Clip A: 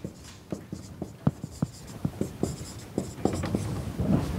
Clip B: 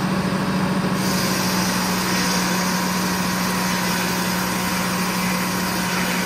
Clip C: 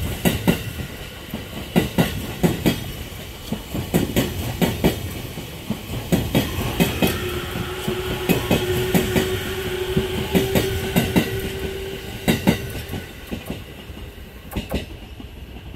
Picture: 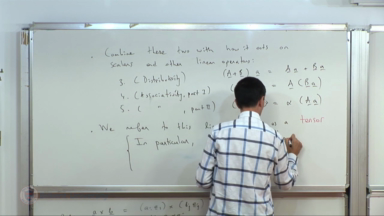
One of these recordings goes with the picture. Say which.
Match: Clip A